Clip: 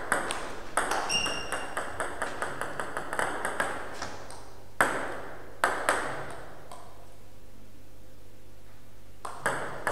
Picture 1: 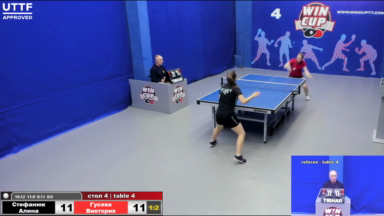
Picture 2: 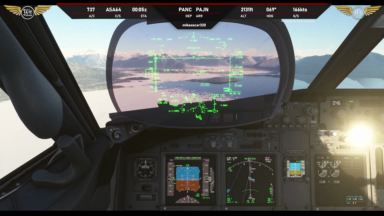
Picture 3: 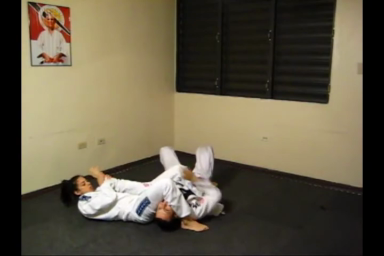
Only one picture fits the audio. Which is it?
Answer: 1